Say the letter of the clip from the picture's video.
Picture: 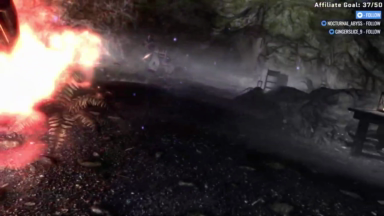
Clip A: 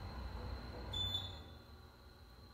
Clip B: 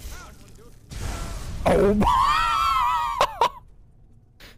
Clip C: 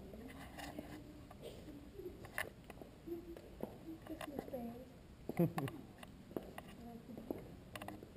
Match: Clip B